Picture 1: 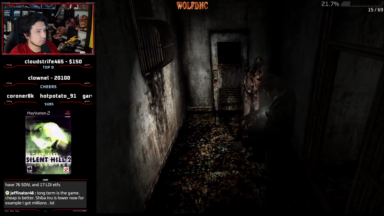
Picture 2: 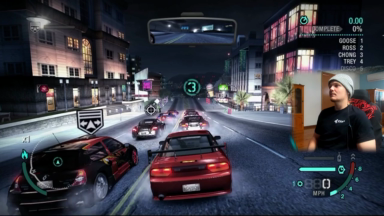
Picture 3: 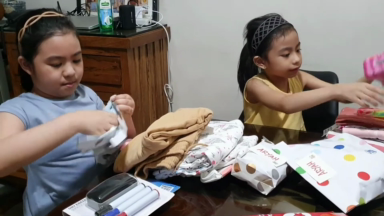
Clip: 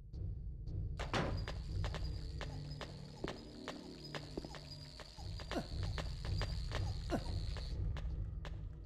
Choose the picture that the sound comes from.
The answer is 1